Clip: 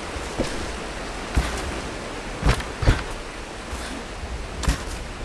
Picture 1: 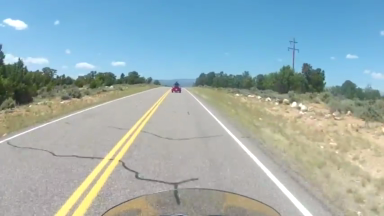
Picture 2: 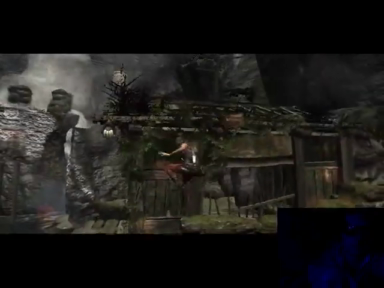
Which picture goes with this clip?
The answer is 2